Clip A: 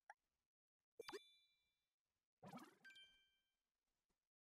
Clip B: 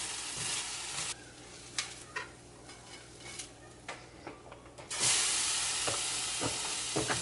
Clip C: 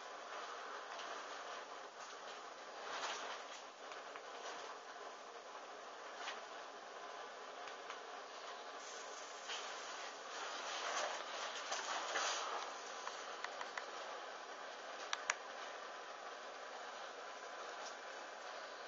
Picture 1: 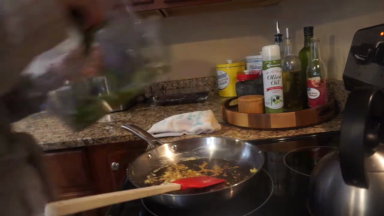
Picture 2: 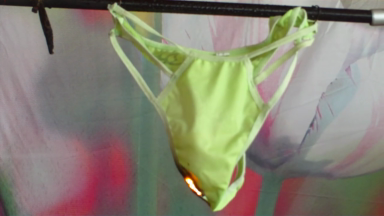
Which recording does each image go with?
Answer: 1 B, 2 C